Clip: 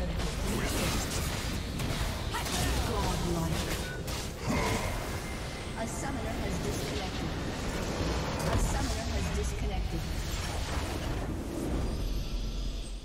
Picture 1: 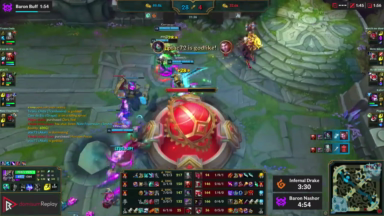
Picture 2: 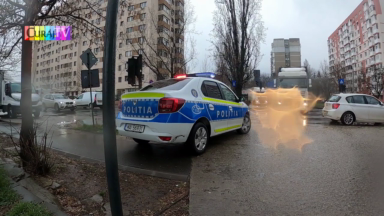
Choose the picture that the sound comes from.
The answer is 1